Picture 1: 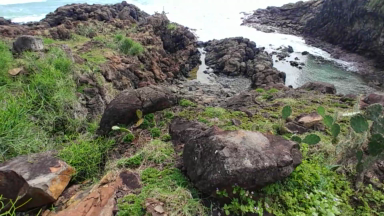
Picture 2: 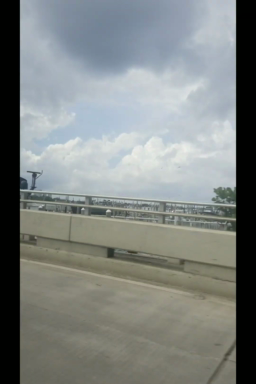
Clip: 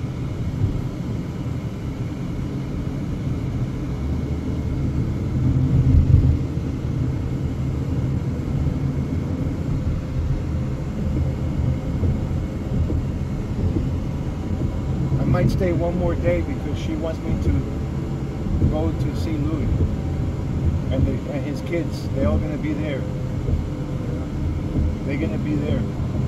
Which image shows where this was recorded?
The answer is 2